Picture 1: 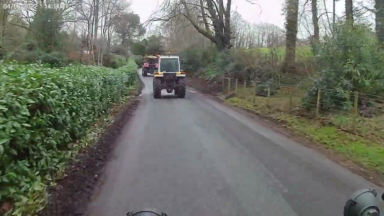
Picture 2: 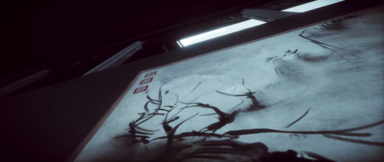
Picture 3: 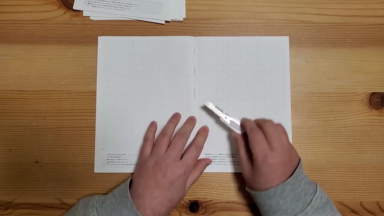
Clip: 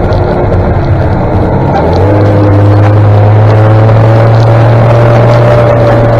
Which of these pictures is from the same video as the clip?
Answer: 1